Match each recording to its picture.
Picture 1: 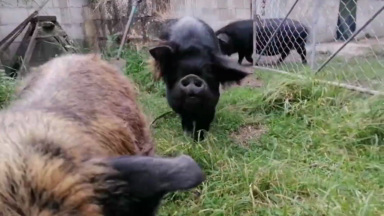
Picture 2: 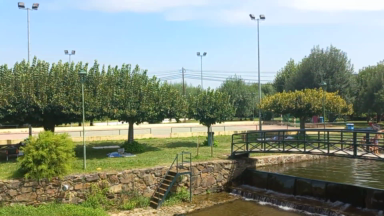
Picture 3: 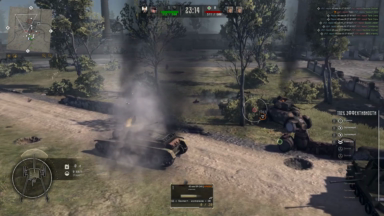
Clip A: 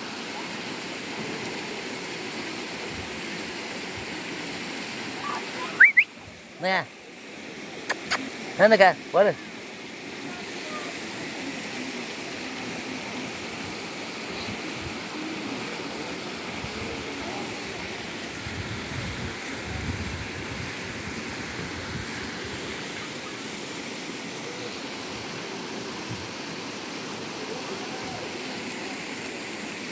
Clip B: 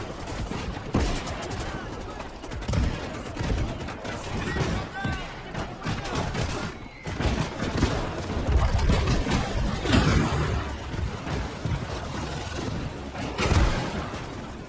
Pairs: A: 2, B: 3